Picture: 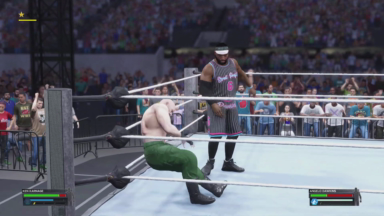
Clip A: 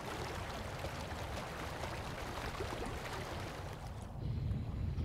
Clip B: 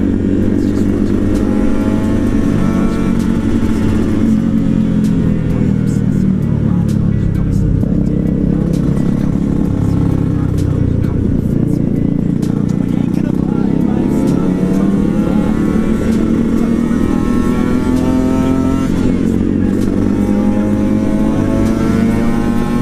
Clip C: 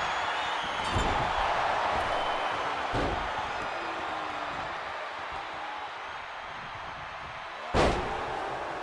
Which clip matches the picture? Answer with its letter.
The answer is C